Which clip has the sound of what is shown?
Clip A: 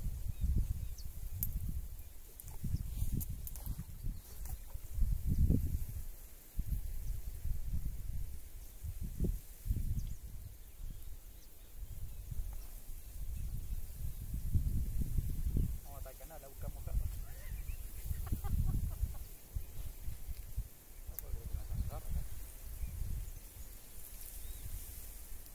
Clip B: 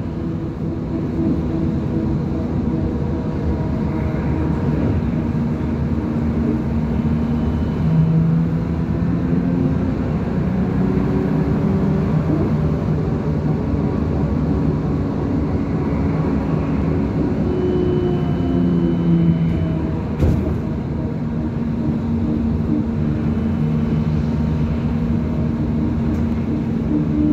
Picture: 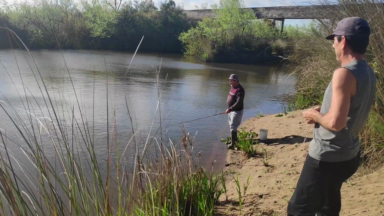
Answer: A